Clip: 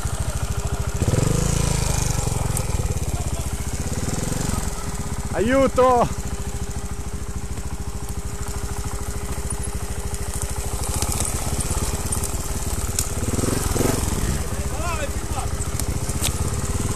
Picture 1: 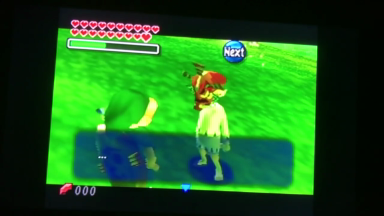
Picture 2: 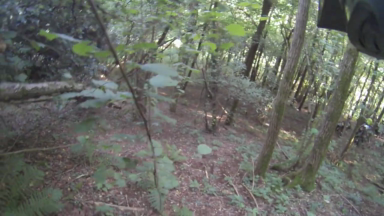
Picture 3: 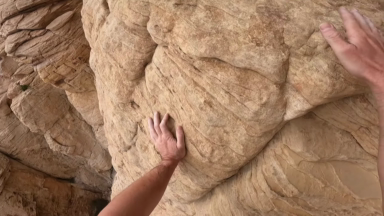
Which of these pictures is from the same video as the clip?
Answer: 2